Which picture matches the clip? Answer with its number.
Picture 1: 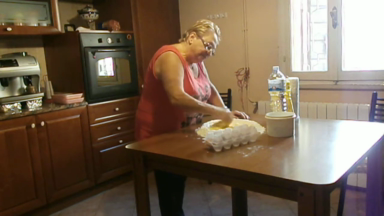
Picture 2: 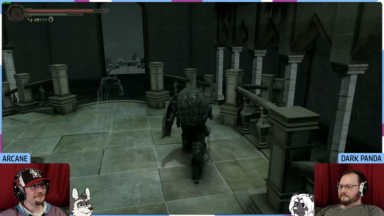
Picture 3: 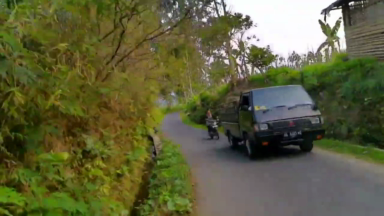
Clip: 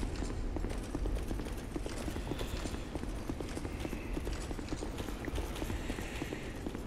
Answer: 2